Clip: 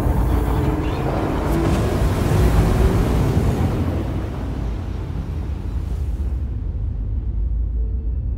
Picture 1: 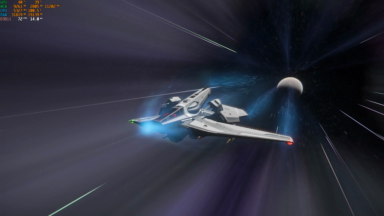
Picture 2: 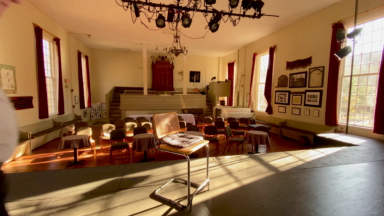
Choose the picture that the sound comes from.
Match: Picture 1